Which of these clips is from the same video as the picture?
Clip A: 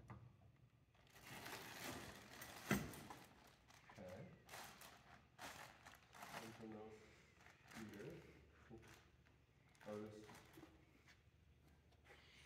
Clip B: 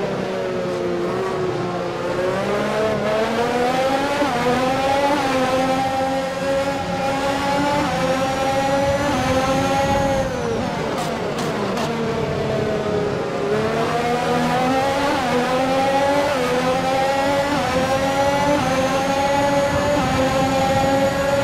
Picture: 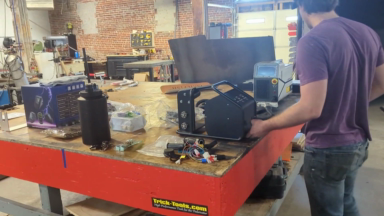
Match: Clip A